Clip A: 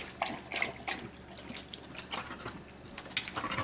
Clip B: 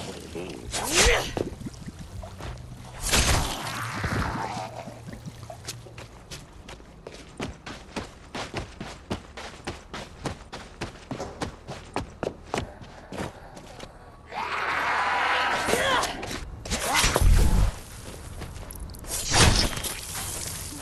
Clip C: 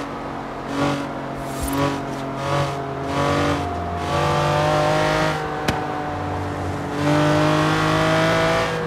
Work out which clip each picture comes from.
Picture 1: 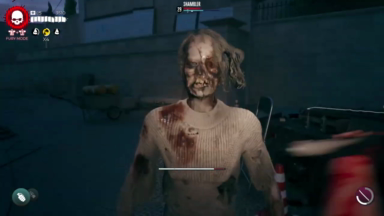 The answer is B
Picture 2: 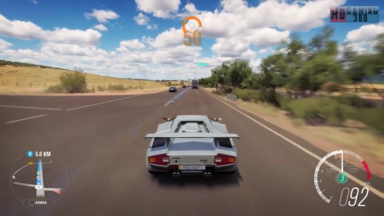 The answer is C